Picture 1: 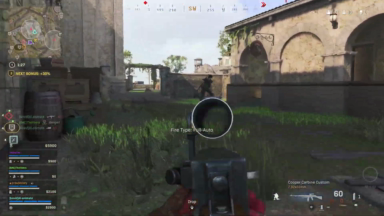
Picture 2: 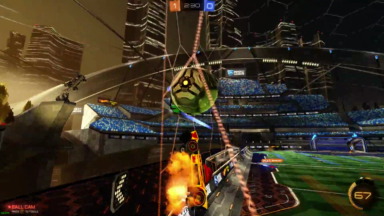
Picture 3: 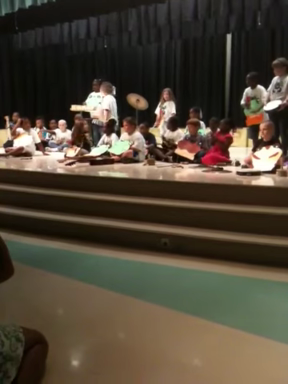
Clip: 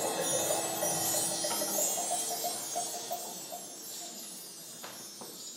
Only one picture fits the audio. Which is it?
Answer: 3